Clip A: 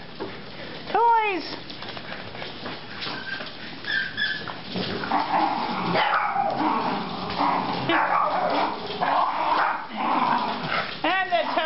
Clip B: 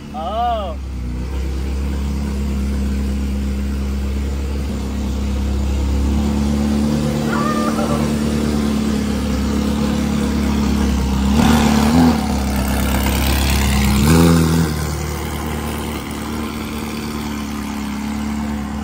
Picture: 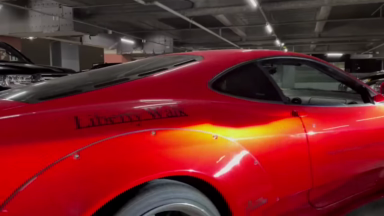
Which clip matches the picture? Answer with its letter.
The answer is B